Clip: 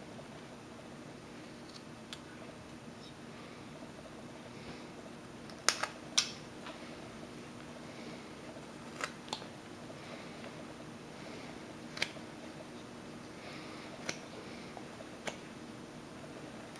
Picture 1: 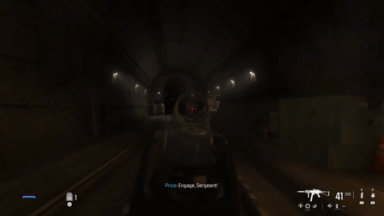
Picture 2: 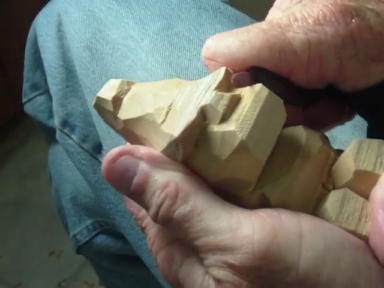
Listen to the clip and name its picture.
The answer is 2